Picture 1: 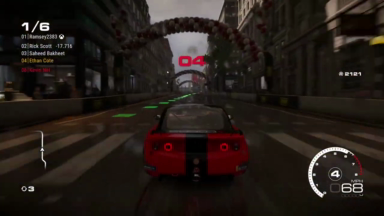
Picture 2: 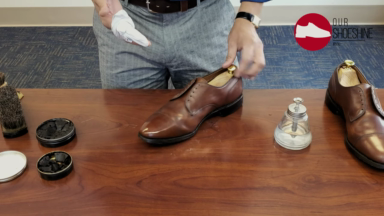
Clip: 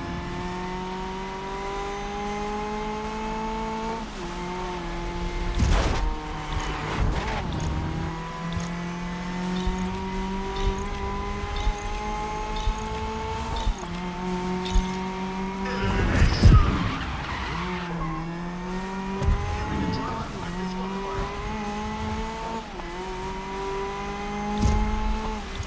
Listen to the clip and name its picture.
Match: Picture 1